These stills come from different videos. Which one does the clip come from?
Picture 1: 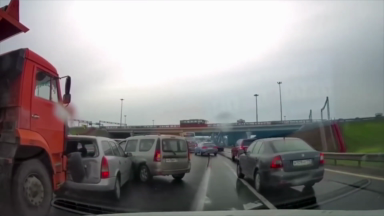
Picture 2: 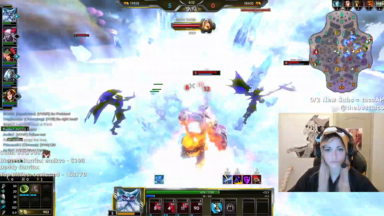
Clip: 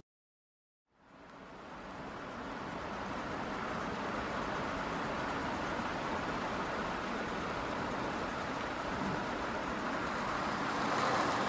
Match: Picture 1